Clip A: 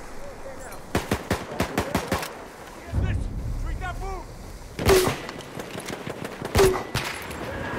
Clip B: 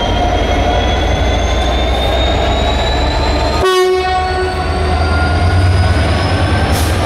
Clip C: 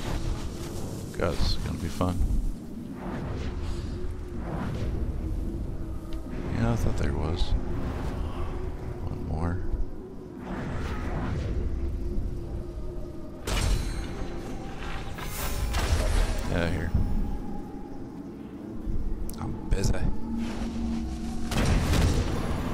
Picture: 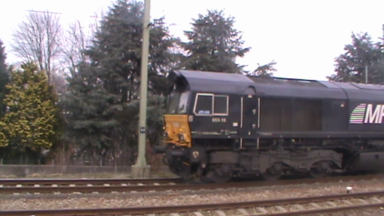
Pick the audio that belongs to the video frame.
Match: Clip B